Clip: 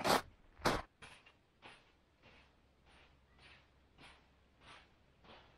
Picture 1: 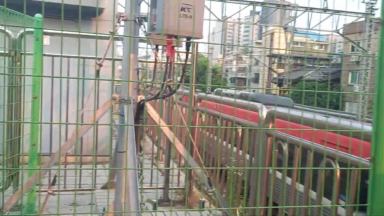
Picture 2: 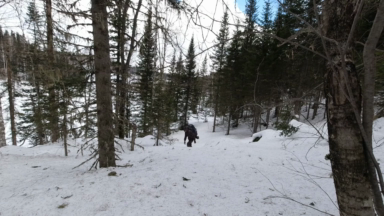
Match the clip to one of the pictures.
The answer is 2